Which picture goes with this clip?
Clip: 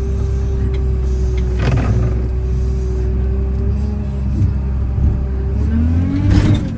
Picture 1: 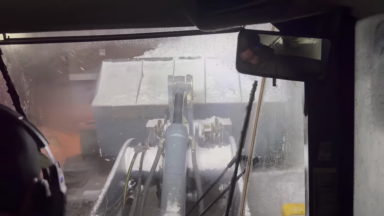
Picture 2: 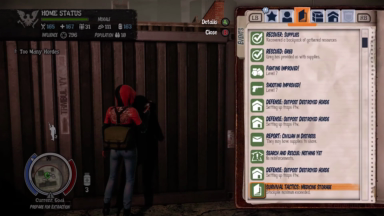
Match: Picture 1